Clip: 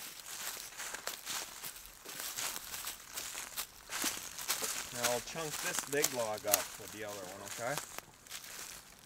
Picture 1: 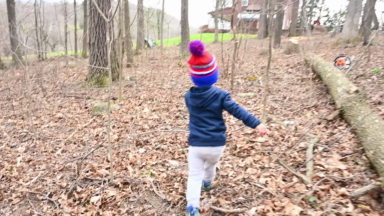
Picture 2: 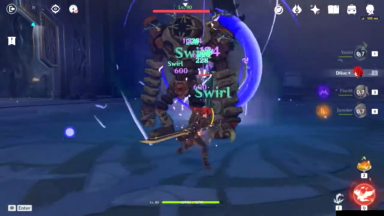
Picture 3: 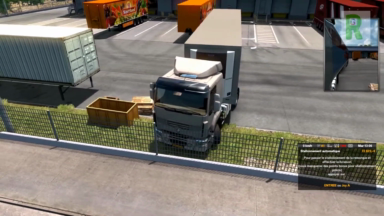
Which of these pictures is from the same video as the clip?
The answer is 1